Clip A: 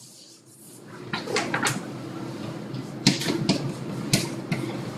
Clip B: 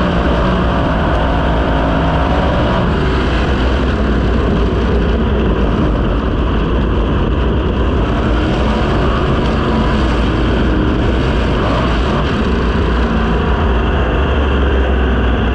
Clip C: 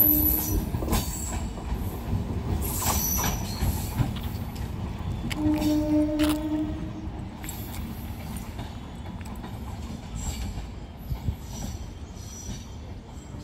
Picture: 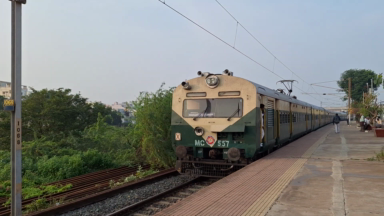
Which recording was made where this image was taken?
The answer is C